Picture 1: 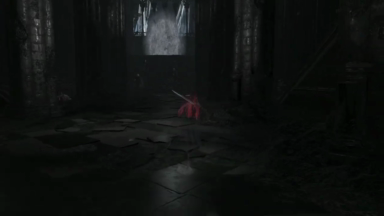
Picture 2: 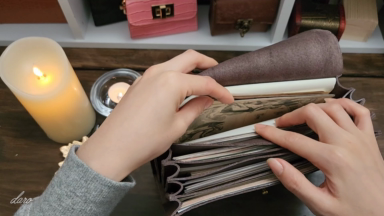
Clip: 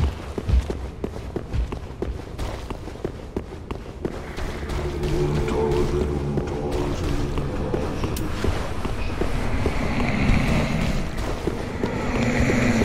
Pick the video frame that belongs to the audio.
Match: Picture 1